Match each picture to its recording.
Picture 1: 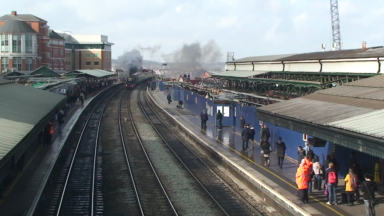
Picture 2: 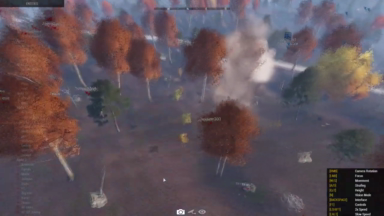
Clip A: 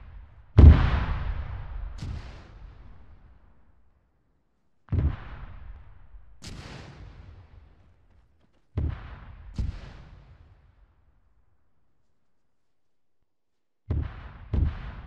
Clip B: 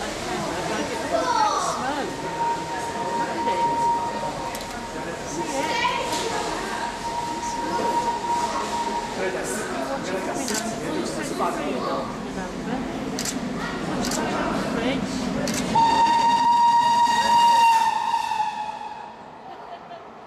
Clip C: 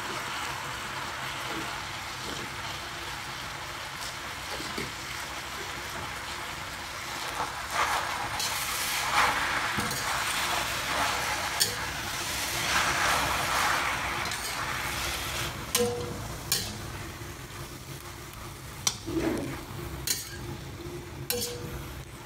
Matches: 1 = B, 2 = A